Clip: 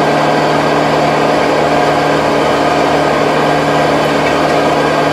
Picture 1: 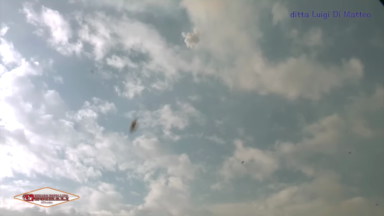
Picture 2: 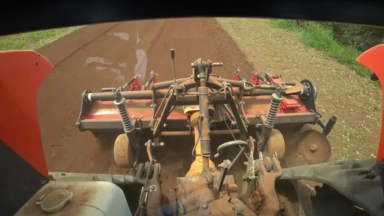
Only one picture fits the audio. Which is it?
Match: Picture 2